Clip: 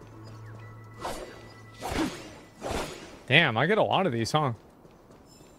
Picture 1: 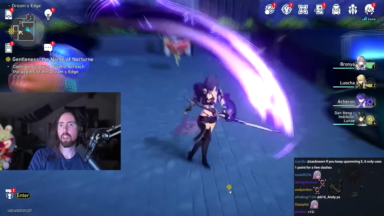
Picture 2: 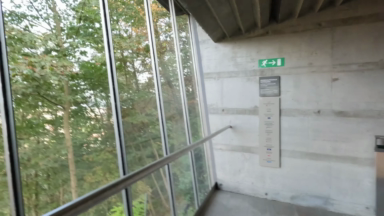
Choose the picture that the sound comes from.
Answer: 1